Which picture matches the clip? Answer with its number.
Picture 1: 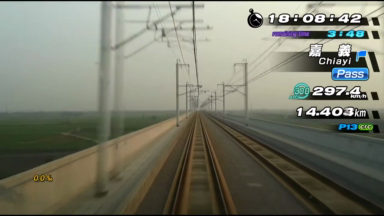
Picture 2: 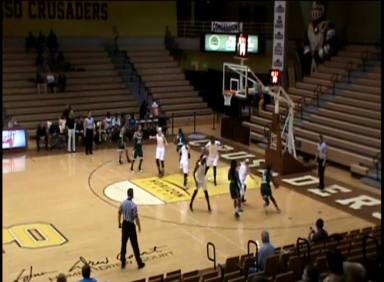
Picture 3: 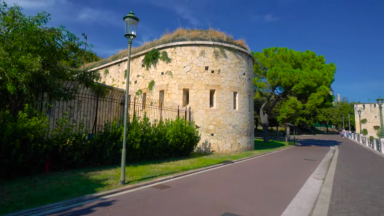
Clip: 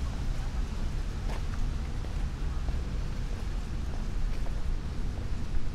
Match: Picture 3